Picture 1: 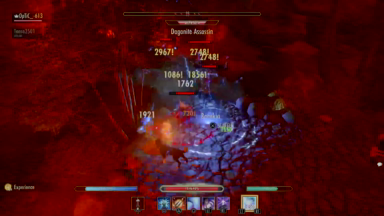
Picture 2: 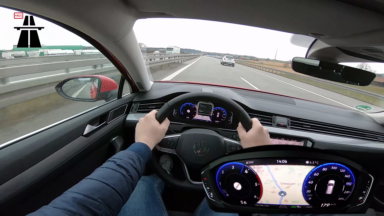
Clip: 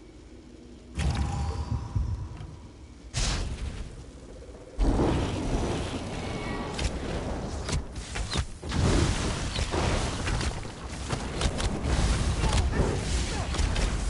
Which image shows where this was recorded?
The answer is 1